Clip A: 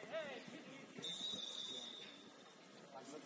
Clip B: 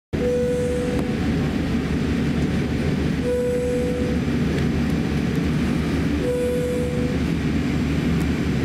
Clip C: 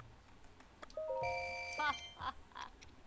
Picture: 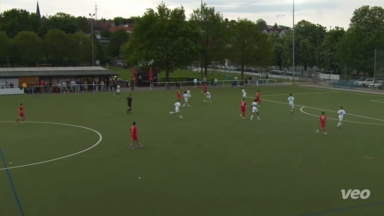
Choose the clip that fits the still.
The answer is A